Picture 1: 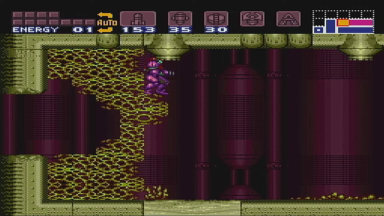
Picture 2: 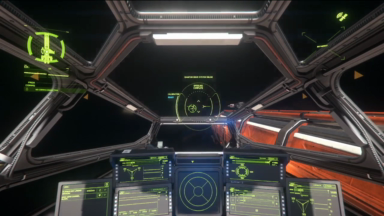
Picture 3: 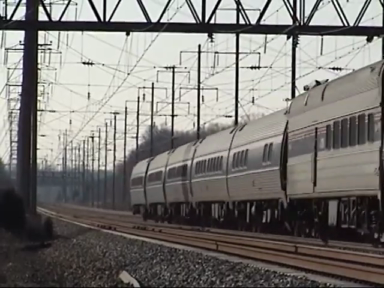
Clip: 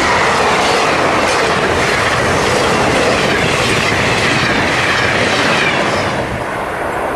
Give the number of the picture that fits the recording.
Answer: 3